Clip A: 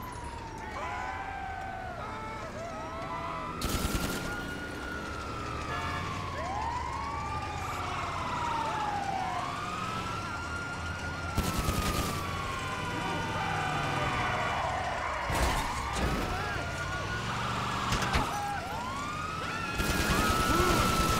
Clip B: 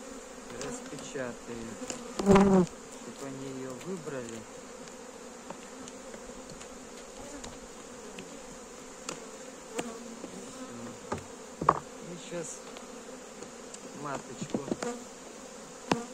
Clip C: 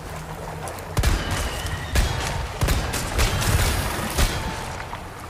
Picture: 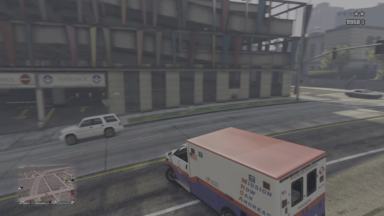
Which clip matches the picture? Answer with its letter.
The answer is A